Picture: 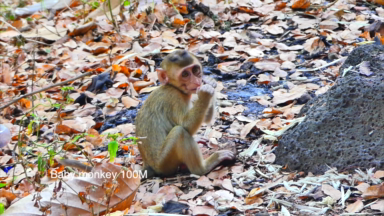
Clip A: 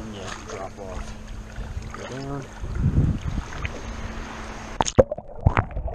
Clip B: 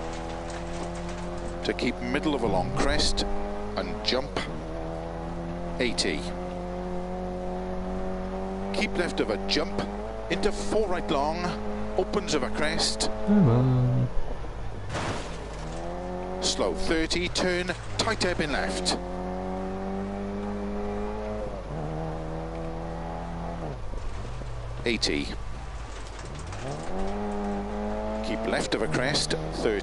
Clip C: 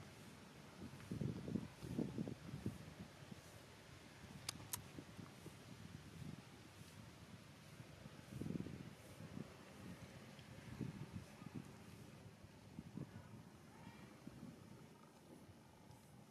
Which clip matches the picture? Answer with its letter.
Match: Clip C